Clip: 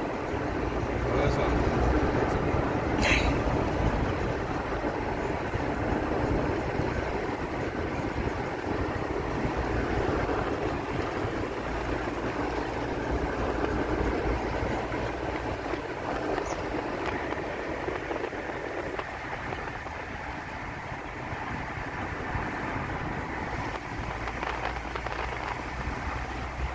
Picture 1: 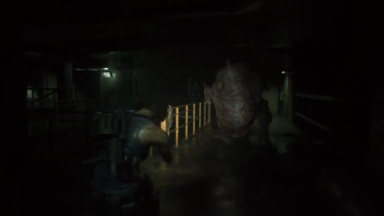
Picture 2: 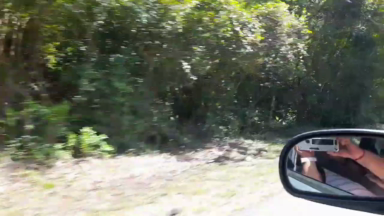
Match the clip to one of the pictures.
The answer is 2